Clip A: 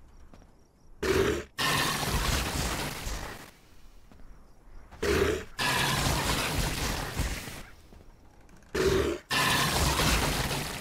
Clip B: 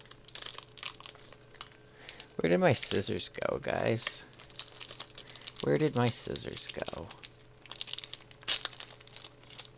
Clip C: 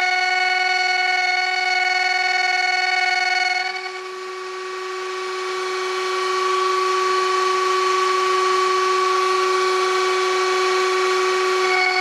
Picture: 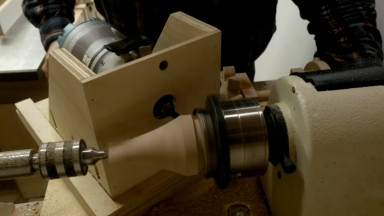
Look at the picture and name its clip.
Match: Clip C